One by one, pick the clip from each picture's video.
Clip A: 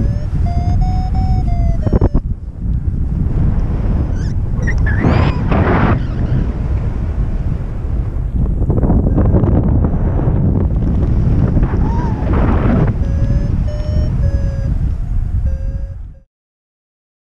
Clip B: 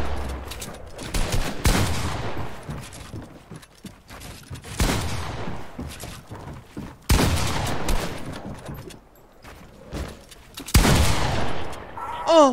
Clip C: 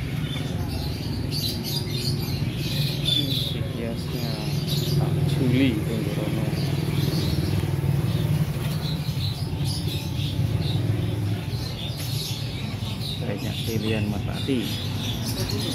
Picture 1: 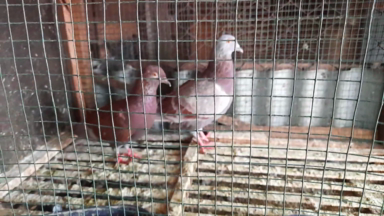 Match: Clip C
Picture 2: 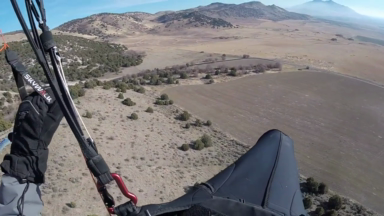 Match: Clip A